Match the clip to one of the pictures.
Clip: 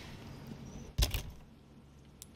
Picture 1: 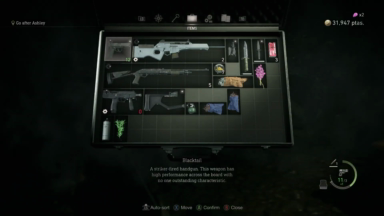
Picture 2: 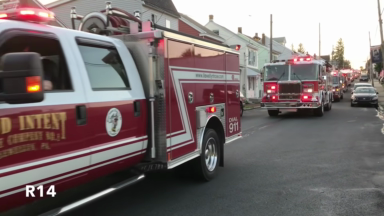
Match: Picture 1